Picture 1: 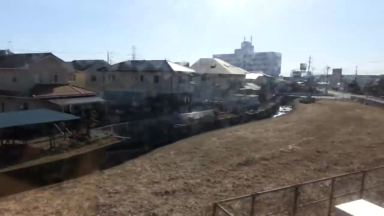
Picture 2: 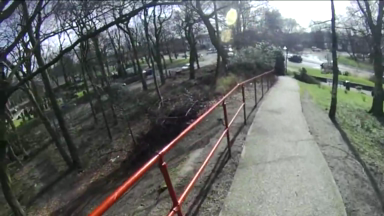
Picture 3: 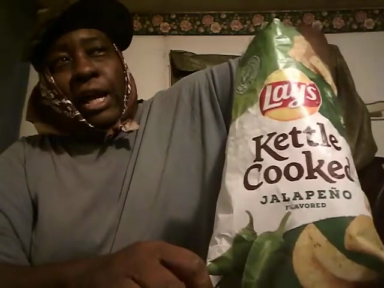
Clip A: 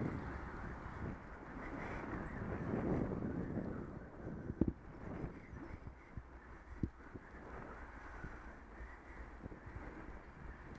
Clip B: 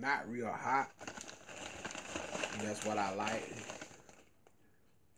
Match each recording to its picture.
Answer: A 2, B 3